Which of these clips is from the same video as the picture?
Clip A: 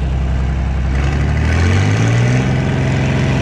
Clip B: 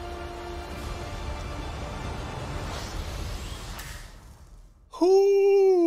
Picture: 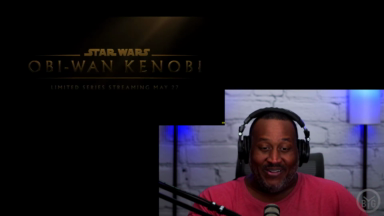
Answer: B